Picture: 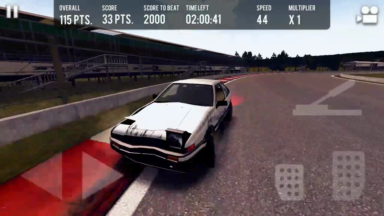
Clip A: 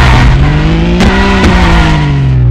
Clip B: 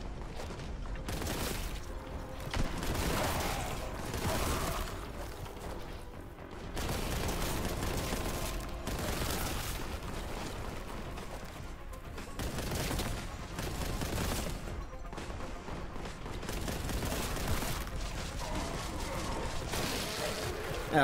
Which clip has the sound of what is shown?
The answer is A